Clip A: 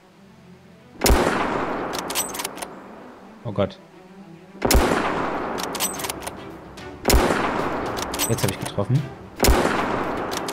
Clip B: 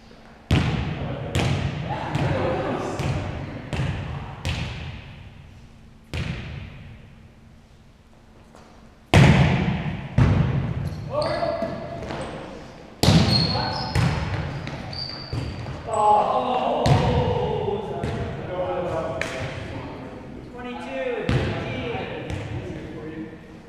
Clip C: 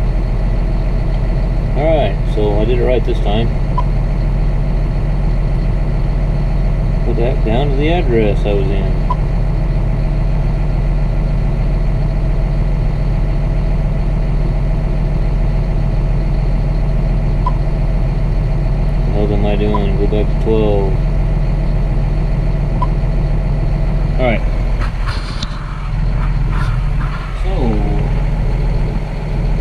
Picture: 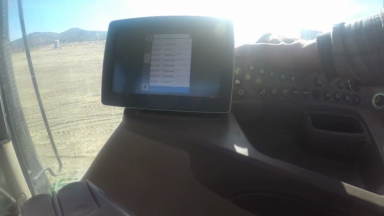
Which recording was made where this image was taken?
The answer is C